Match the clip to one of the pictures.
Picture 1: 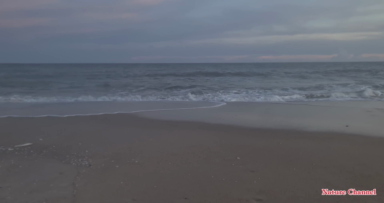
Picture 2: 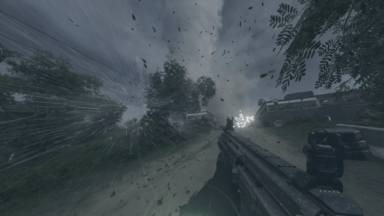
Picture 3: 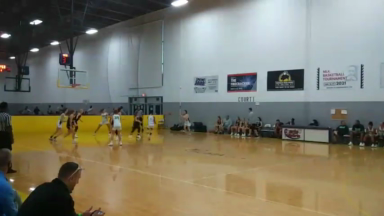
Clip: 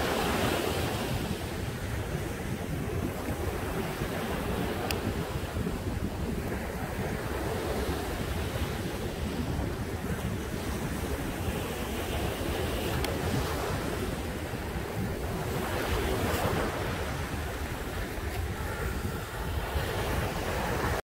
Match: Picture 1